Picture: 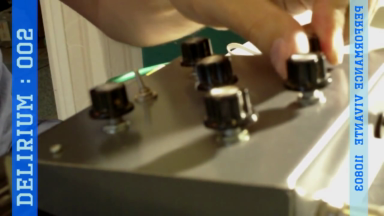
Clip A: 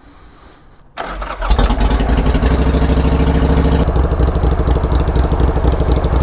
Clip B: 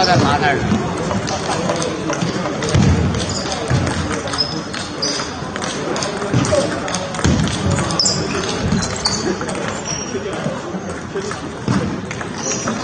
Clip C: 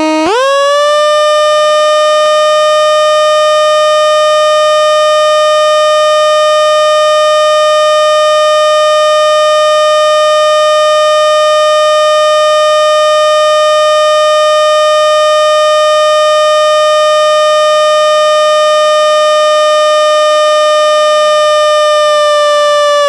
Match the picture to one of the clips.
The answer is C